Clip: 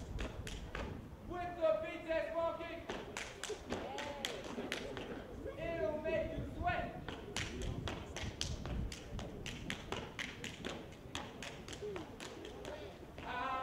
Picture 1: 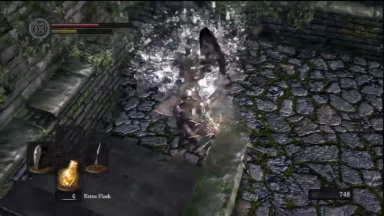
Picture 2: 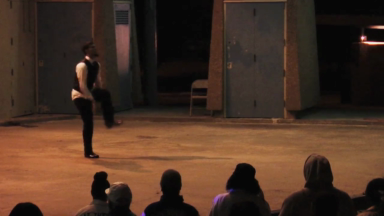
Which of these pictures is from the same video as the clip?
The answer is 2